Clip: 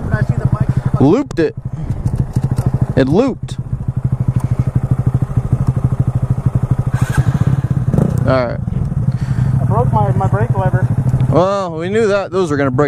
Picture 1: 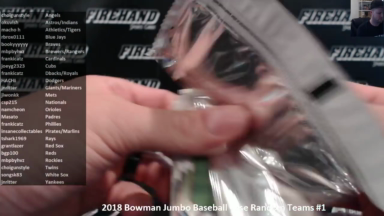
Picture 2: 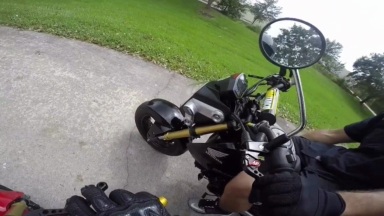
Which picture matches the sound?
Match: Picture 2